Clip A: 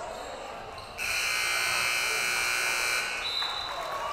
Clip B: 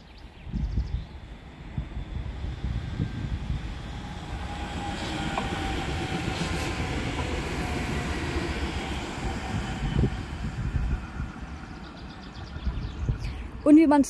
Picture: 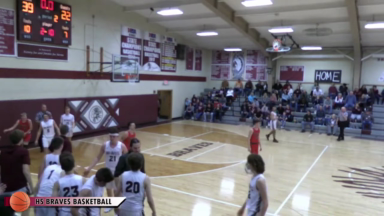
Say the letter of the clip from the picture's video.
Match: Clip A